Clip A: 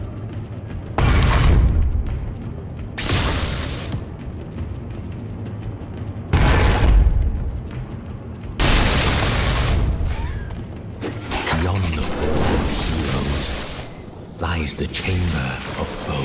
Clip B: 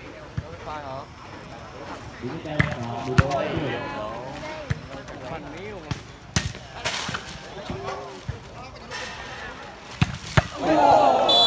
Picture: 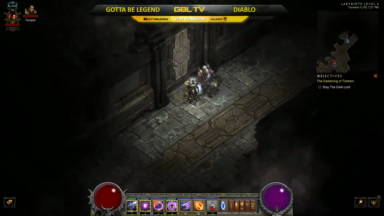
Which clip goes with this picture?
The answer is A